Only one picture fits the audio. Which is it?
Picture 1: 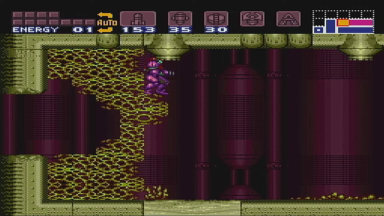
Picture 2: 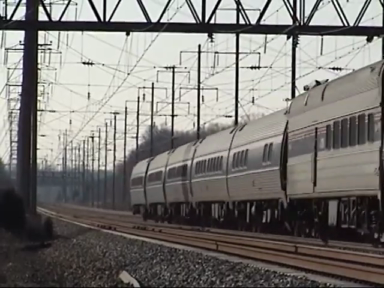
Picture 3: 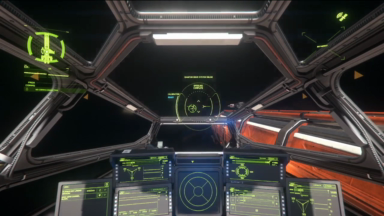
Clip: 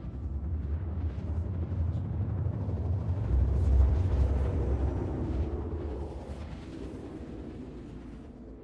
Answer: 3